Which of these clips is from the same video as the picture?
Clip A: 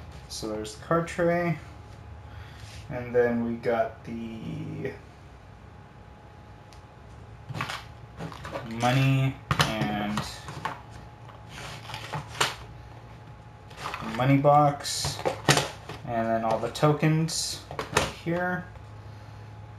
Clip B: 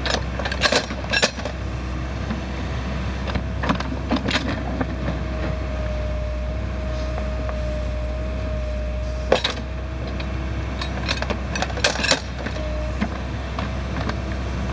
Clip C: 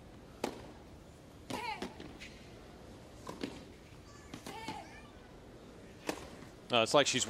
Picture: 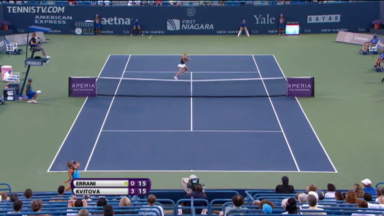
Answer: C